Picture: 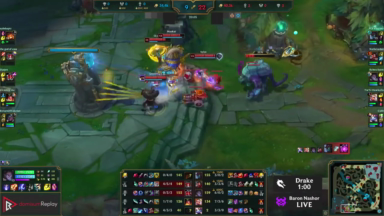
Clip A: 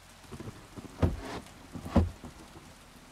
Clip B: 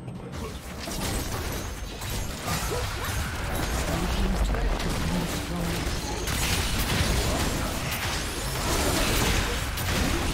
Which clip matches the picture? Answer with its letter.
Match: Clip B